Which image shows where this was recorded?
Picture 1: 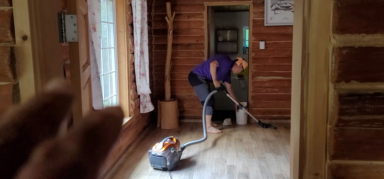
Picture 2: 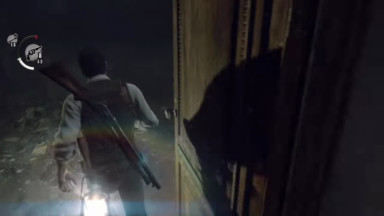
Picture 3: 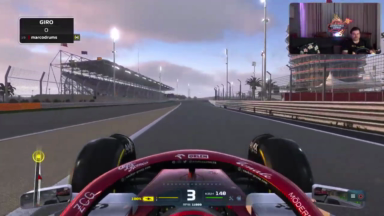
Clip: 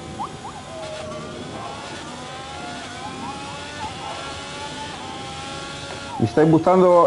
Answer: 3